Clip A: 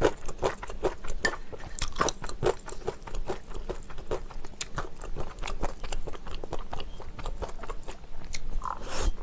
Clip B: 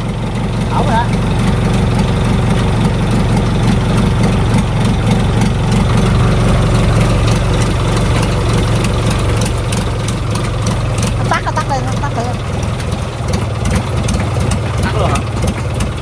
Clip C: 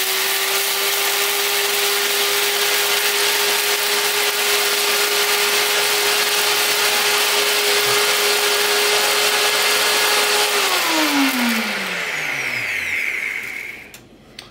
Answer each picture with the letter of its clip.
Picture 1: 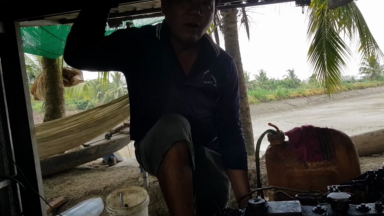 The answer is B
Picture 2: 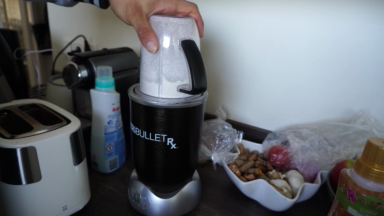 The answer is C